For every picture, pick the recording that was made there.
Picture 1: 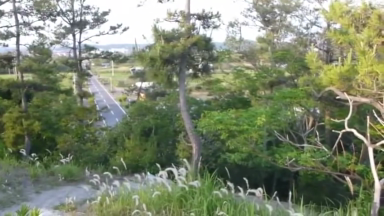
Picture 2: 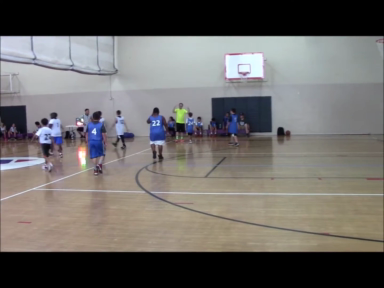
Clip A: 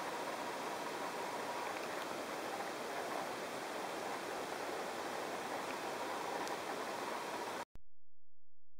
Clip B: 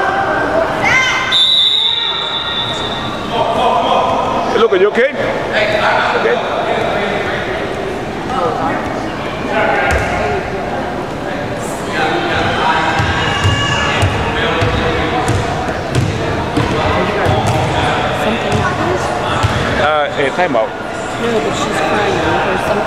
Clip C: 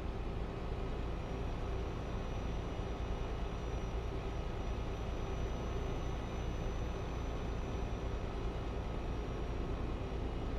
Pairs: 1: A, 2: B